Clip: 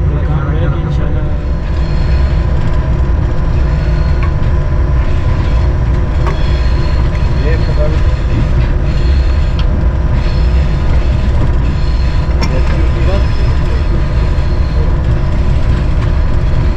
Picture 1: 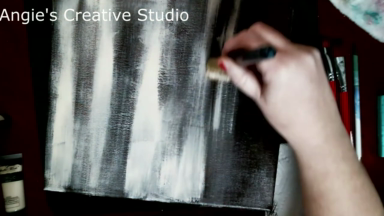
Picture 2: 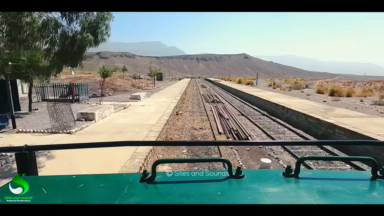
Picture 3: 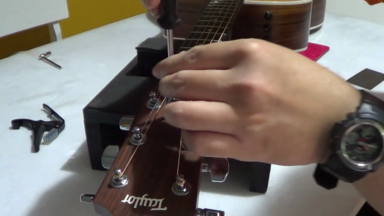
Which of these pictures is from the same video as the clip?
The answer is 2